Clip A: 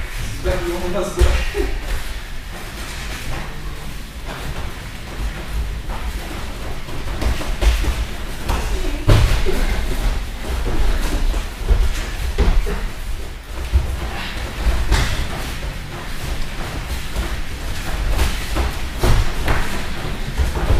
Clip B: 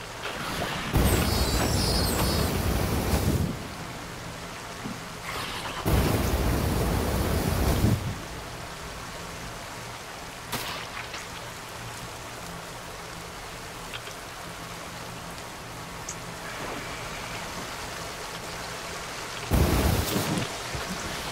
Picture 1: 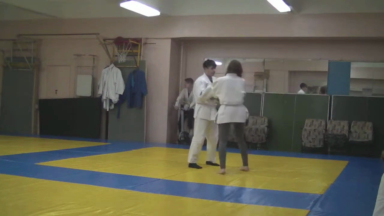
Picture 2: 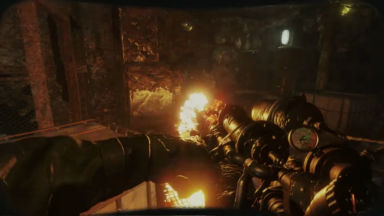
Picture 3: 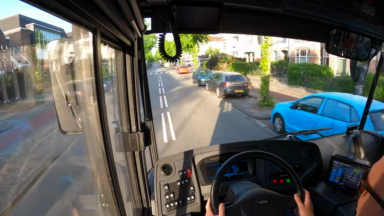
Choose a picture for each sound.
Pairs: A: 1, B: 2